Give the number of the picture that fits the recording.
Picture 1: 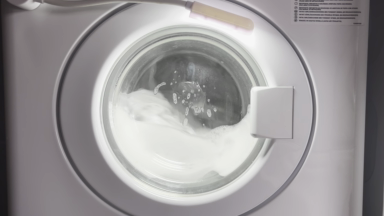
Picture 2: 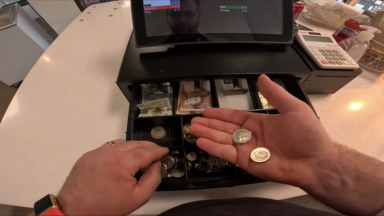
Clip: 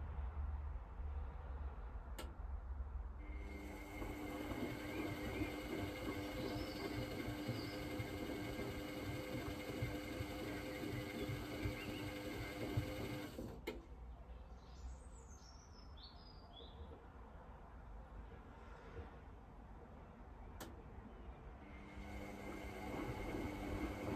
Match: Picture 1